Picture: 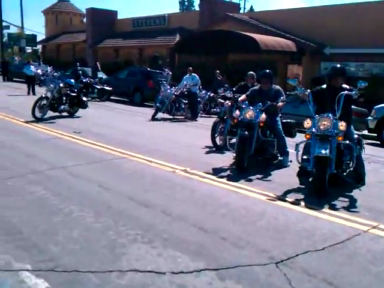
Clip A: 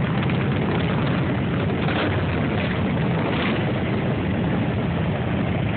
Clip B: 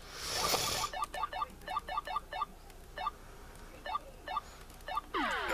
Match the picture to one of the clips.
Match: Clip A